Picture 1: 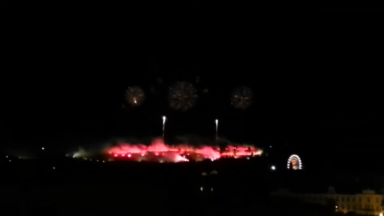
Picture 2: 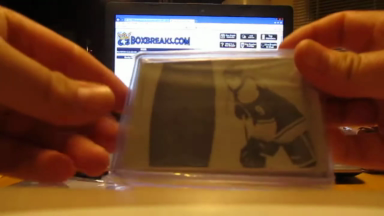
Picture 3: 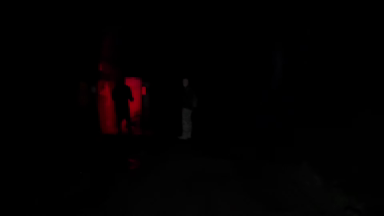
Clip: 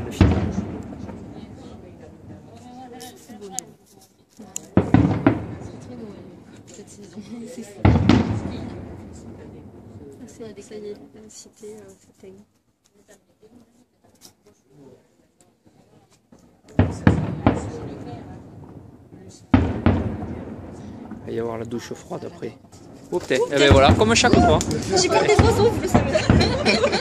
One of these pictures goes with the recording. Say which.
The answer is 1